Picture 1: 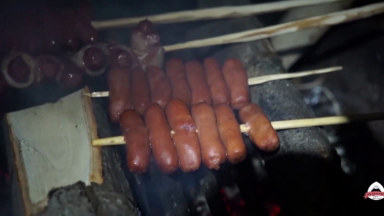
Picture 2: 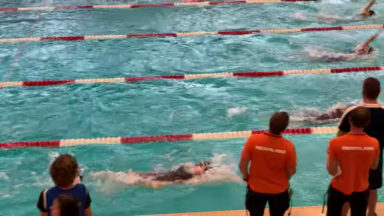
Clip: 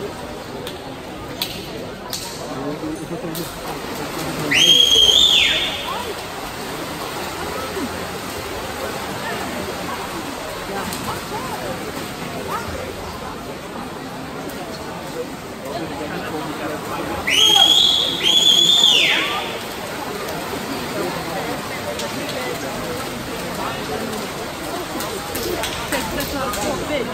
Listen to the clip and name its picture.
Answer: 2